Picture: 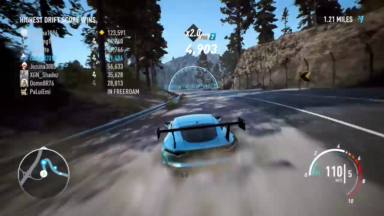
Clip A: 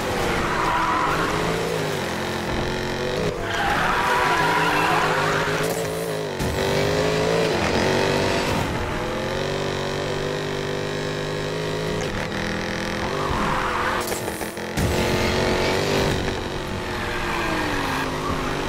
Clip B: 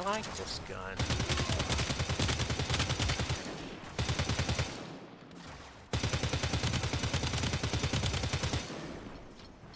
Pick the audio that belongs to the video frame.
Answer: A